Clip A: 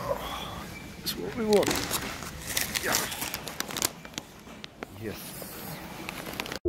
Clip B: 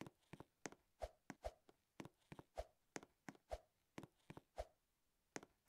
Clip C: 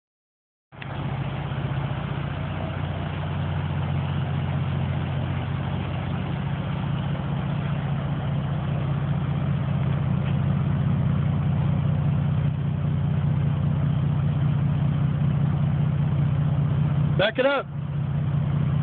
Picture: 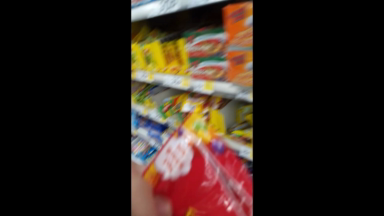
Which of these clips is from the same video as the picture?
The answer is A